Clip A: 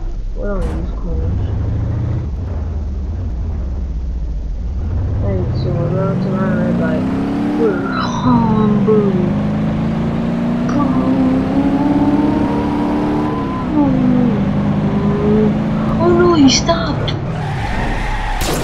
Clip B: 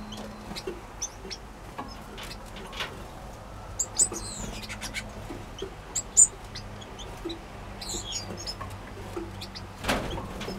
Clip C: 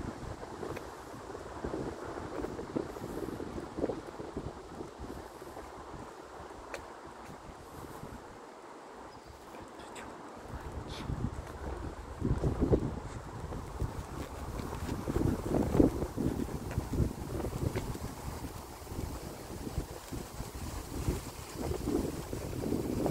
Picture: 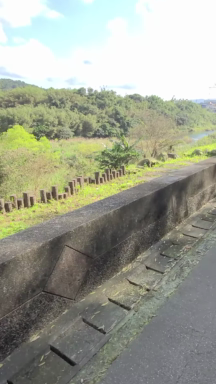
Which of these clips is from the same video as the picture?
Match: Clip C